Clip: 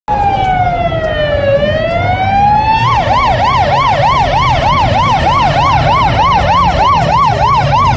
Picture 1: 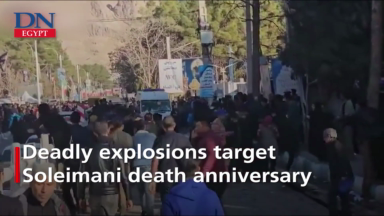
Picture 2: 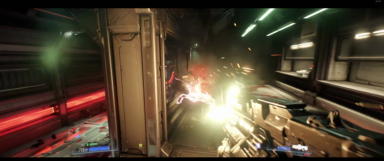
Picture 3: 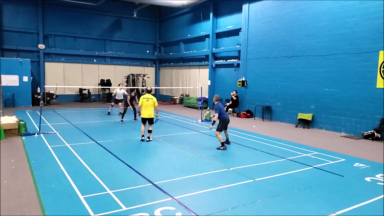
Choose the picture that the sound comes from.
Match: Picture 1